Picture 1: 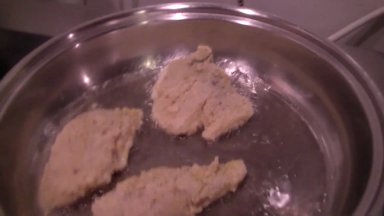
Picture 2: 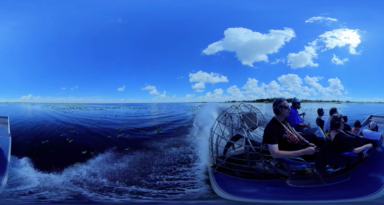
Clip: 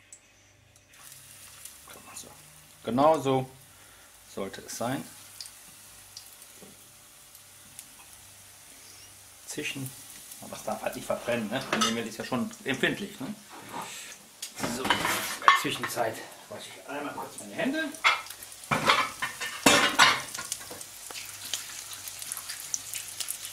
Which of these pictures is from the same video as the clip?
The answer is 1